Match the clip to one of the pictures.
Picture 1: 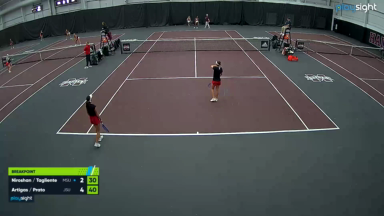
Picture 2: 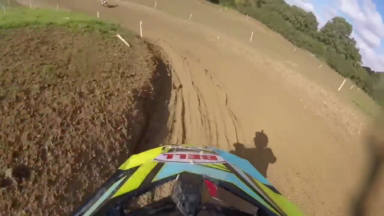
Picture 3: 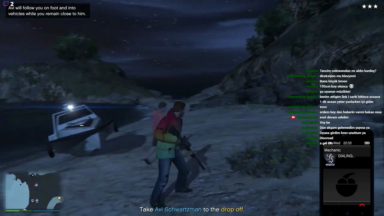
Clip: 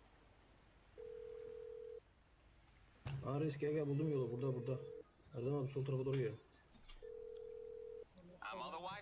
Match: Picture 3